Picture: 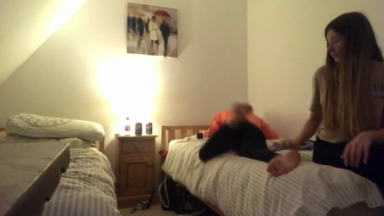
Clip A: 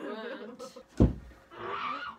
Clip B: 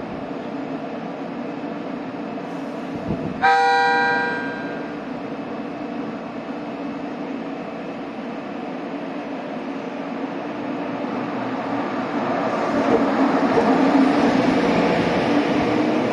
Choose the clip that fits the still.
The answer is A